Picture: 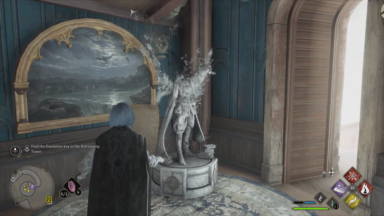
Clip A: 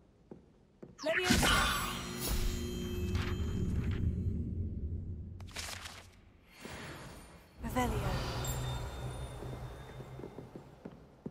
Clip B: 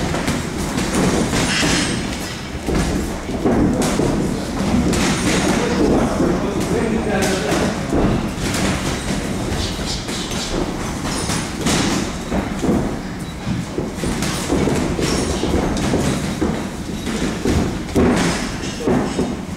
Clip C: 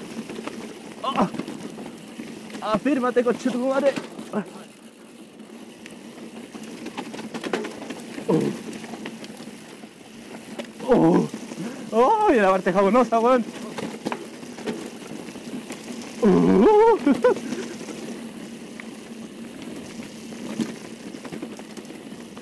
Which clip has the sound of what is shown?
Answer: A